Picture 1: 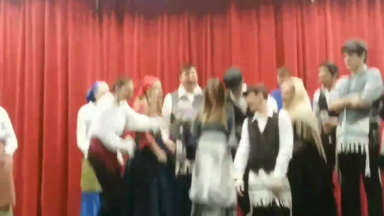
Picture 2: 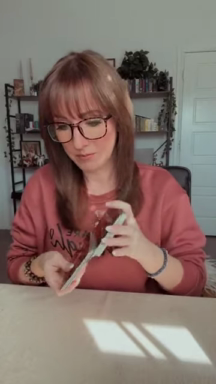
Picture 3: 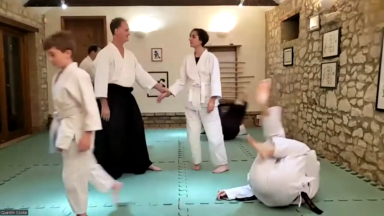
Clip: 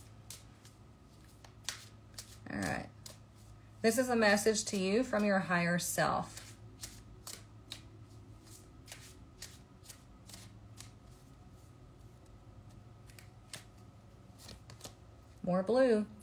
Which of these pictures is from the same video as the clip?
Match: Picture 2